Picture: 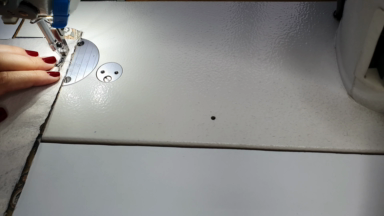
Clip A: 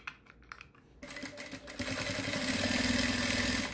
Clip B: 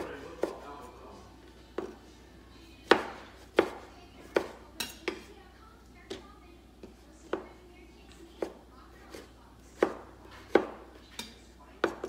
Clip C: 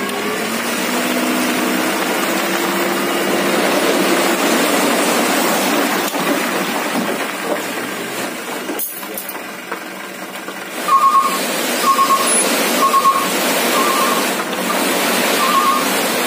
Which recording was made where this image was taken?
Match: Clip A